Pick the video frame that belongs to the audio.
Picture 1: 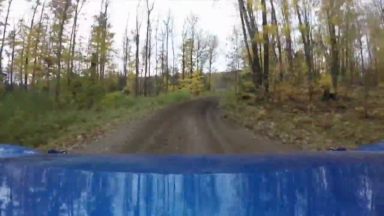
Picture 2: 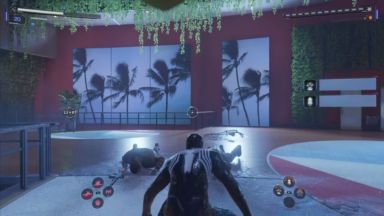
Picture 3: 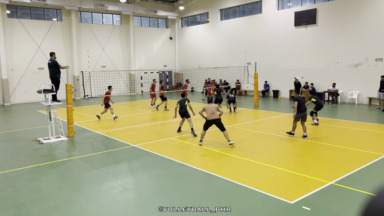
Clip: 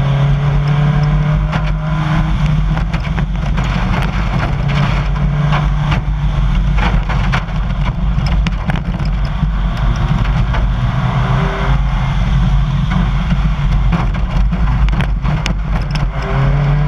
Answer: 1